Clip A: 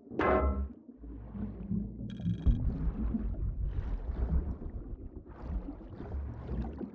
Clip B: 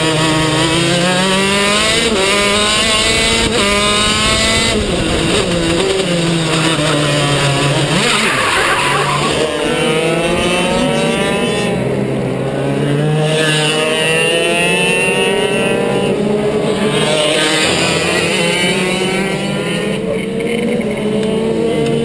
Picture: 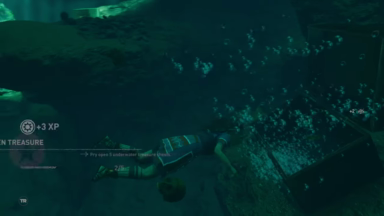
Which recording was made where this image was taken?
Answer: A